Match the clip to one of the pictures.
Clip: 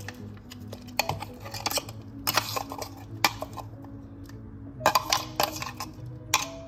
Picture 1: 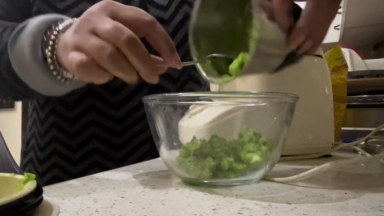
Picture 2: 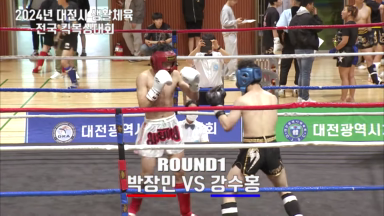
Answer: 1